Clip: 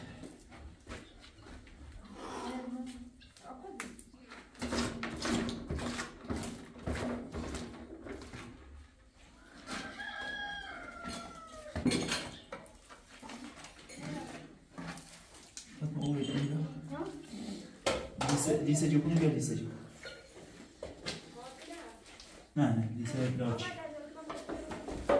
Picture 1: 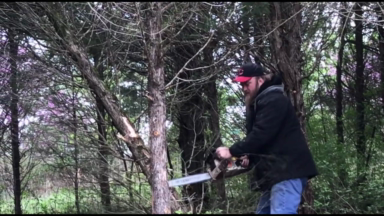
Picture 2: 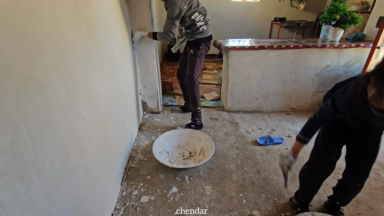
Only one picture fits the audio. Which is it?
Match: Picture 2